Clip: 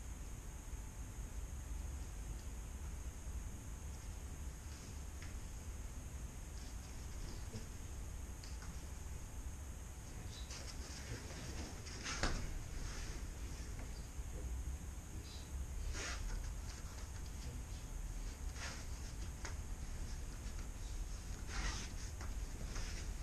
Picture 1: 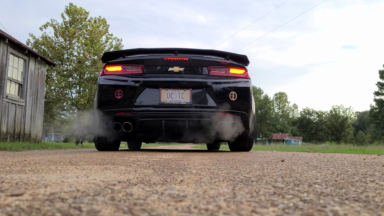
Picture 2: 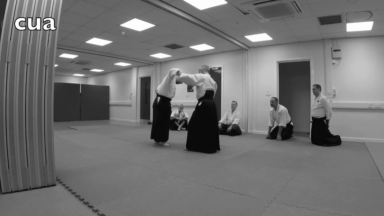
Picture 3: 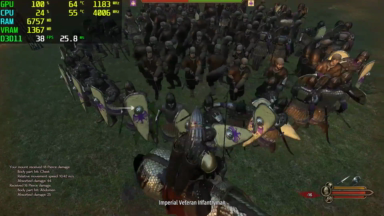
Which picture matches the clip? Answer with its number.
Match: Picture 2